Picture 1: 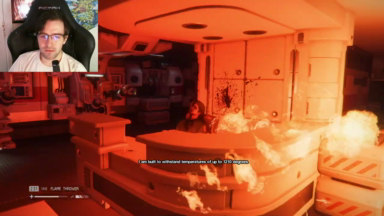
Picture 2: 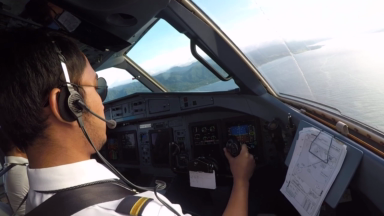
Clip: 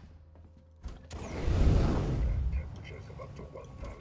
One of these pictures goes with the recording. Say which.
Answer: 1